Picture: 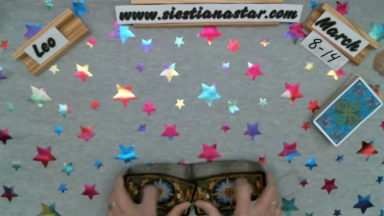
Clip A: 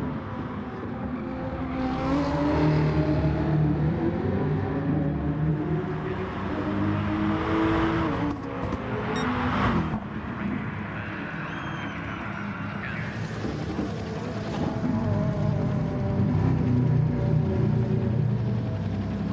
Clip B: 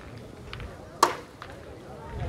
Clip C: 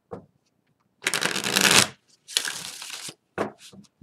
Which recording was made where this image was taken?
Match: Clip C